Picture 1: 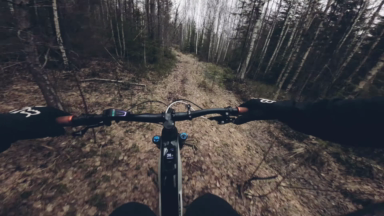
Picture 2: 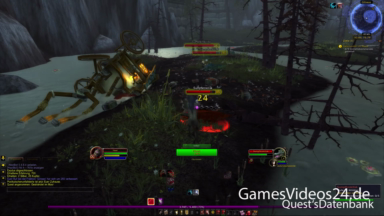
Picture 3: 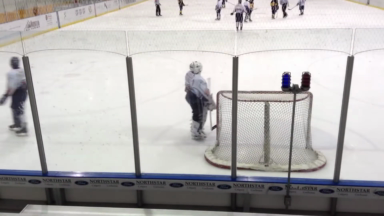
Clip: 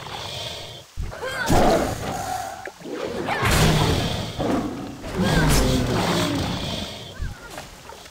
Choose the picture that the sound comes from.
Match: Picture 2